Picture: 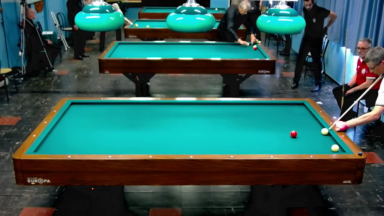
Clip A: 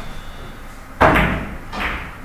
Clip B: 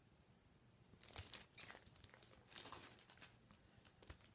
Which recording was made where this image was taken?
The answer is A